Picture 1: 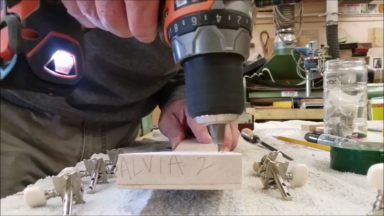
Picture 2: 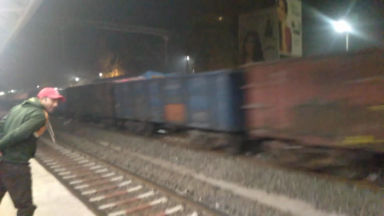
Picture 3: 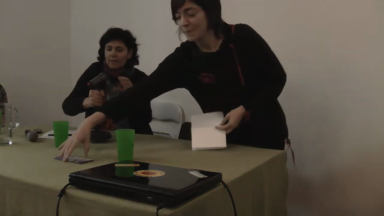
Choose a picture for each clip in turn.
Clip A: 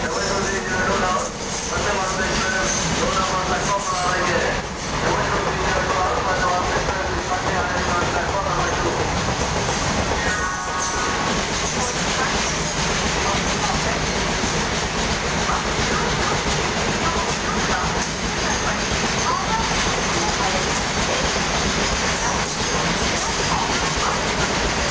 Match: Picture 2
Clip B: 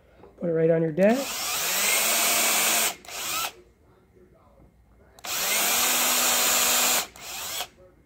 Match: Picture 1